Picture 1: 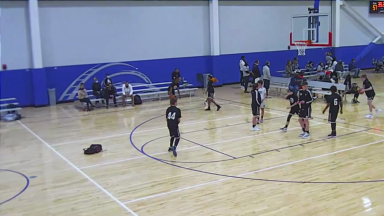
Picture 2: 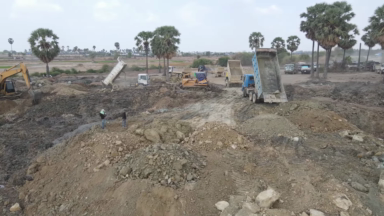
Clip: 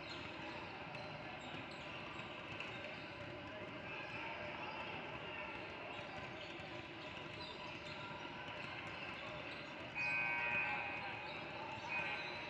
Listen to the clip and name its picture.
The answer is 1